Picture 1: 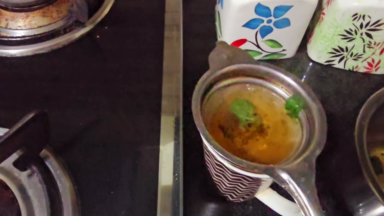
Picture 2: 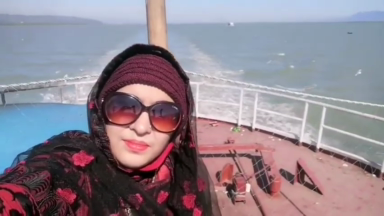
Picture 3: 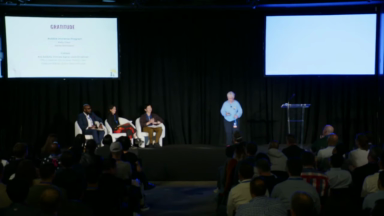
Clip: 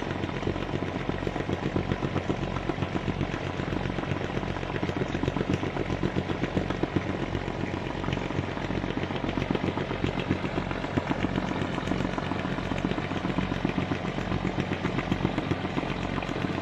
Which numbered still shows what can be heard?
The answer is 2